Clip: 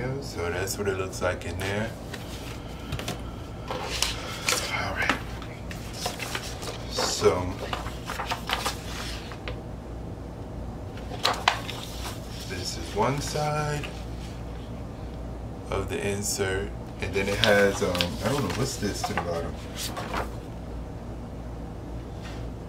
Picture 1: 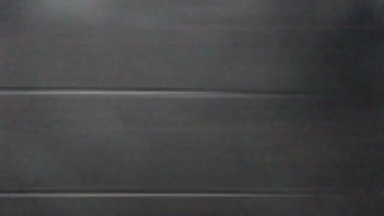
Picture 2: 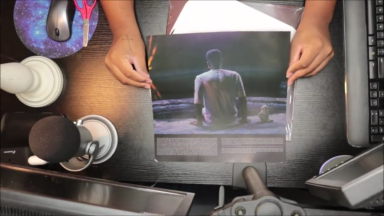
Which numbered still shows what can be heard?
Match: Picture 2